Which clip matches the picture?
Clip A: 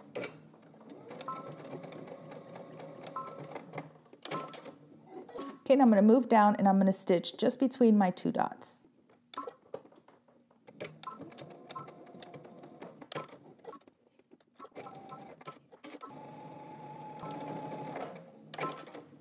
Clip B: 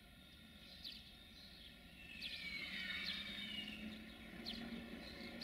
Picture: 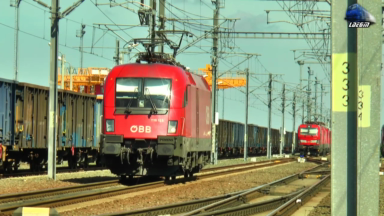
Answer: B